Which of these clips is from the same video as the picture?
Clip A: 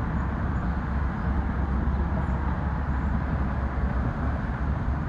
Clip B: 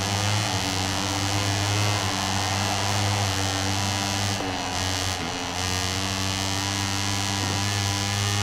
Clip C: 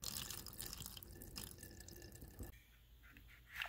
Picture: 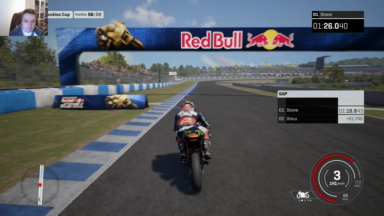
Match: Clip B